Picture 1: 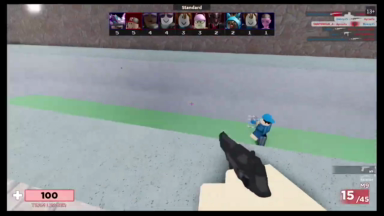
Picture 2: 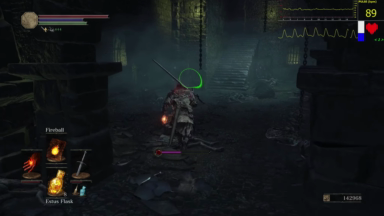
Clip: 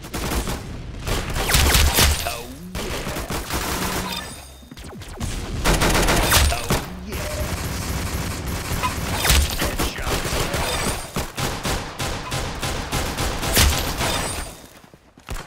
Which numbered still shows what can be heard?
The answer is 1